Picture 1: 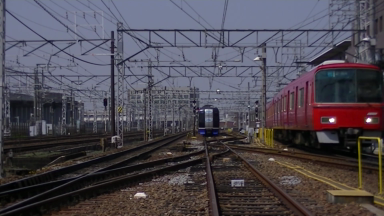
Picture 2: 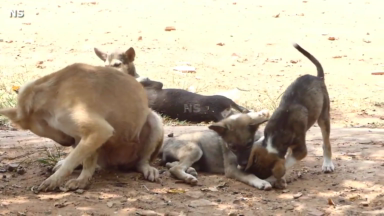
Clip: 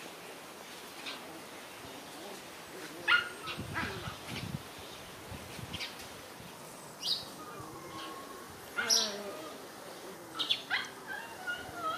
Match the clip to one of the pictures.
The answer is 2